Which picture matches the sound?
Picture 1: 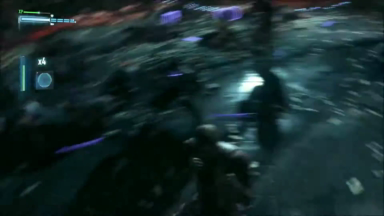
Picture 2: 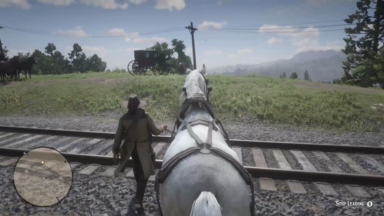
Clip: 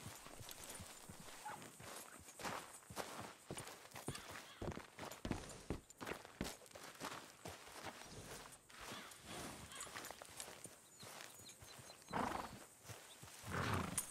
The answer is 2